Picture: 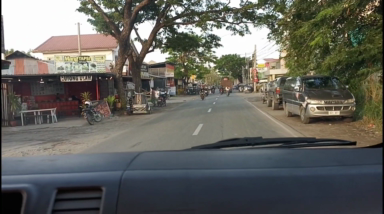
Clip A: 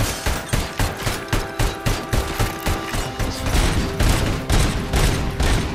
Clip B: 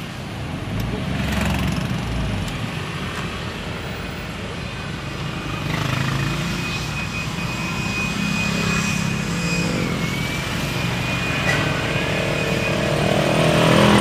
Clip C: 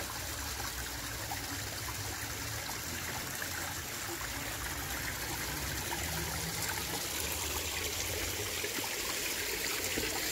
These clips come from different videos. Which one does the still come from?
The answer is B